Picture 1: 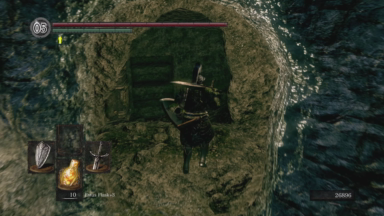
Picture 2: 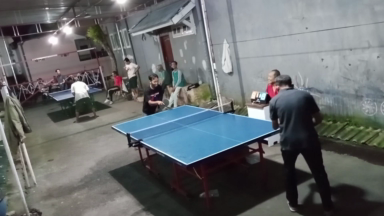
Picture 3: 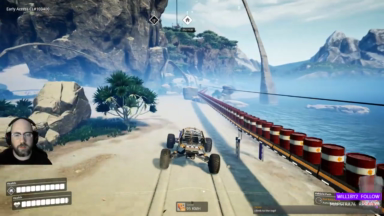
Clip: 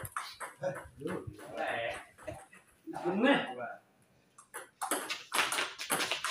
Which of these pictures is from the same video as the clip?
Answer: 2